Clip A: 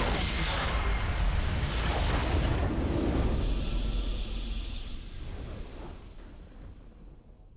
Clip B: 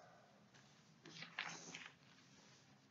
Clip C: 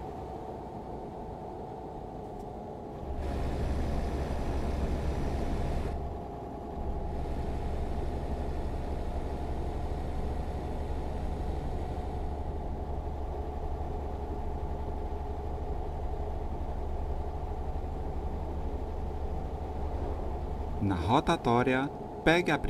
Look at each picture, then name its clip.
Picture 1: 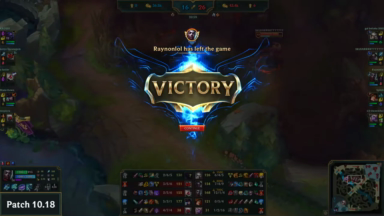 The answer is A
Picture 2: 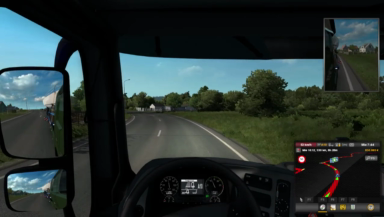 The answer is C